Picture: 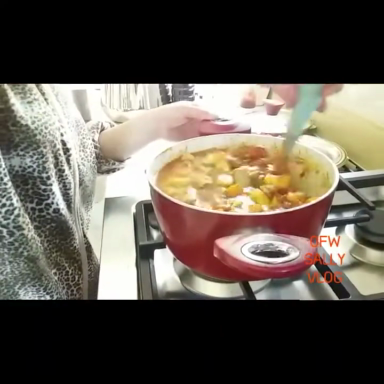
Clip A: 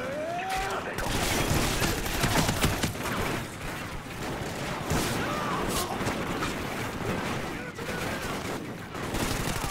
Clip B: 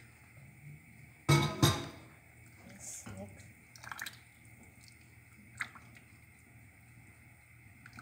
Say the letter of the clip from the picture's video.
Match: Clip B